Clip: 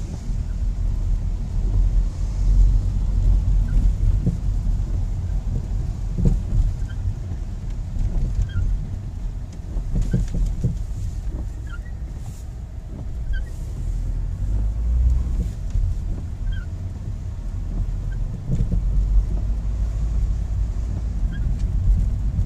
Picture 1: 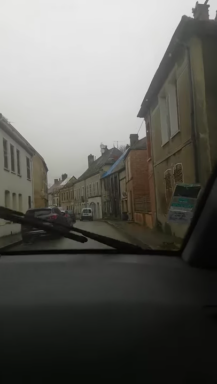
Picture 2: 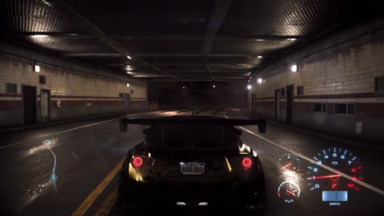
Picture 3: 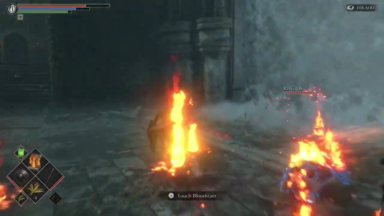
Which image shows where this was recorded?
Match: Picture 1